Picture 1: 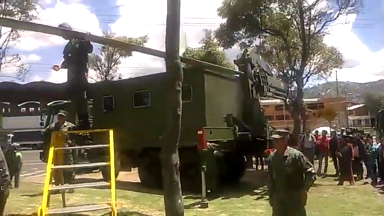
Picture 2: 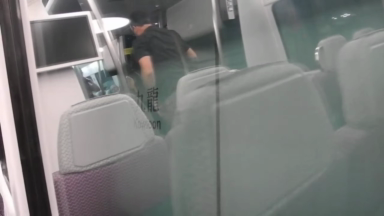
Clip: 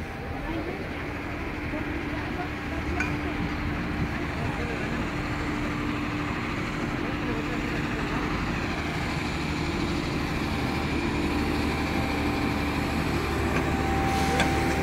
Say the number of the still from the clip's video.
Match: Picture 1